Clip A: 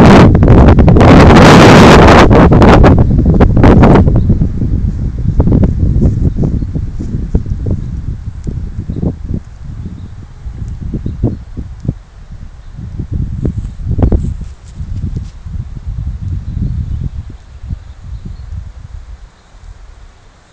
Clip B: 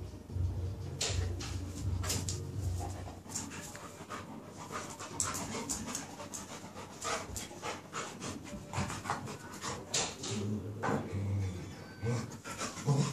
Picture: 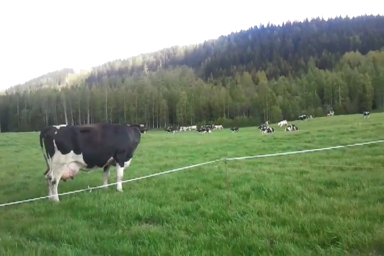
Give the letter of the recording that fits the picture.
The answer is A